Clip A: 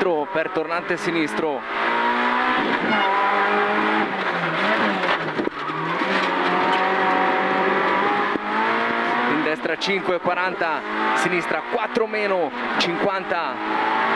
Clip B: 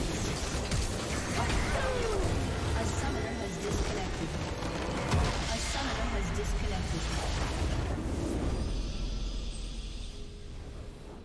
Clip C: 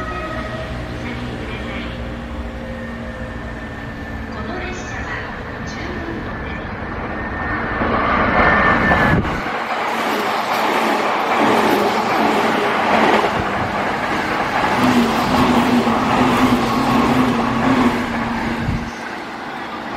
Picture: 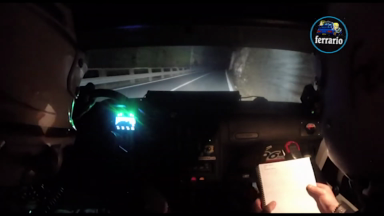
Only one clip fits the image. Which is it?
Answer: A